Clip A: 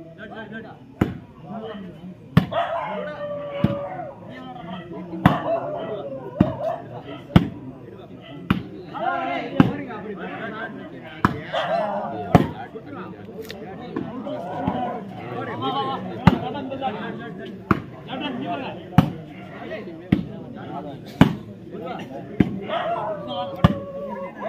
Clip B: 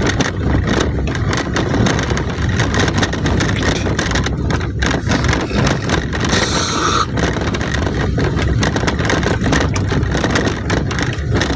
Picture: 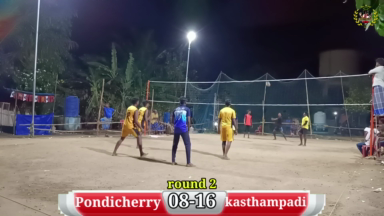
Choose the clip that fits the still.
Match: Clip A